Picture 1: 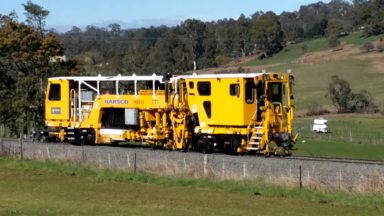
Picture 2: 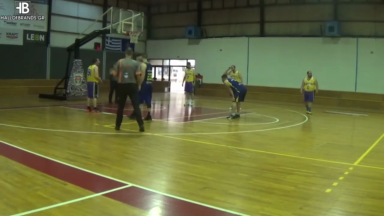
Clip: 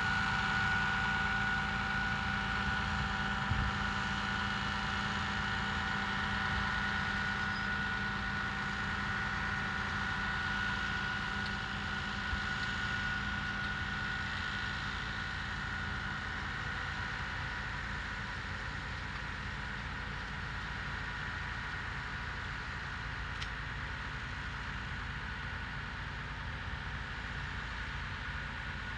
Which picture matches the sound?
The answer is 1